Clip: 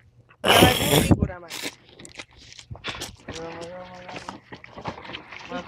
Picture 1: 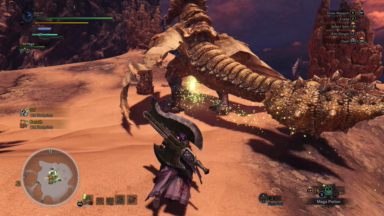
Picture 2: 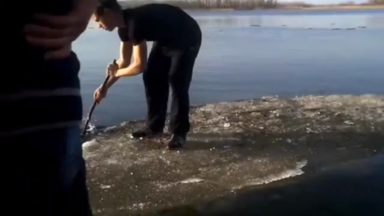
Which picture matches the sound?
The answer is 2